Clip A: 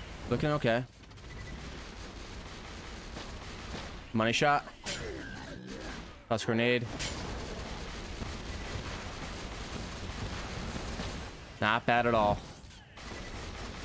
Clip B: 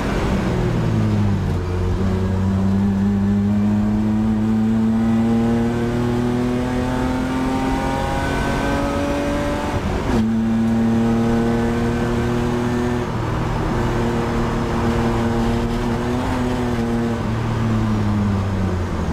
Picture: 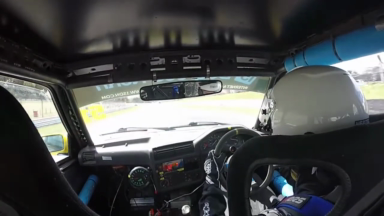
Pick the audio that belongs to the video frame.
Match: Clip B